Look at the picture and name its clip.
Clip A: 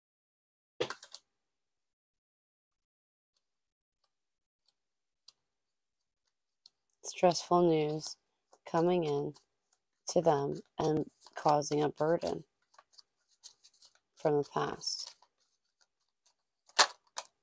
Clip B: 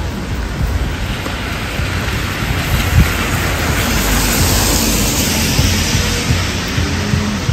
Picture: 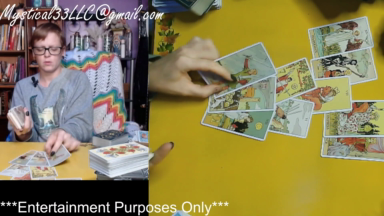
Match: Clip A